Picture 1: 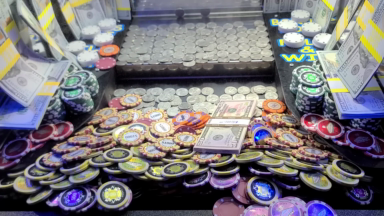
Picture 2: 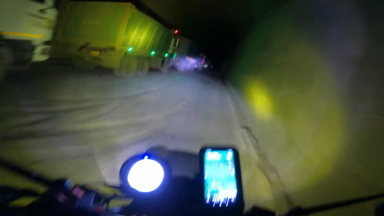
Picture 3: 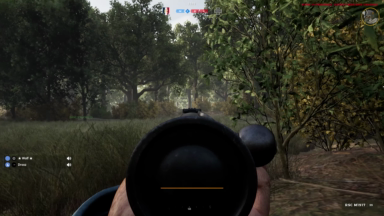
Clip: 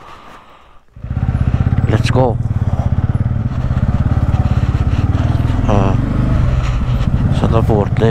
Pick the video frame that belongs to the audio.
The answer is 2